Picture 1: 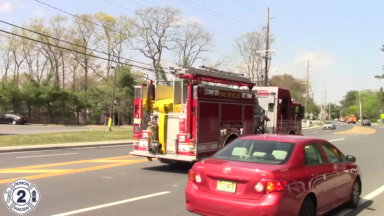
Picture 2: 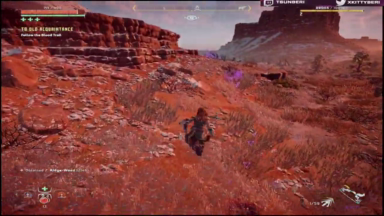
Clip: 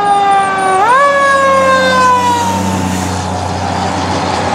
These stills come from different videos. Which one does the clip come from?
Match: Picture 1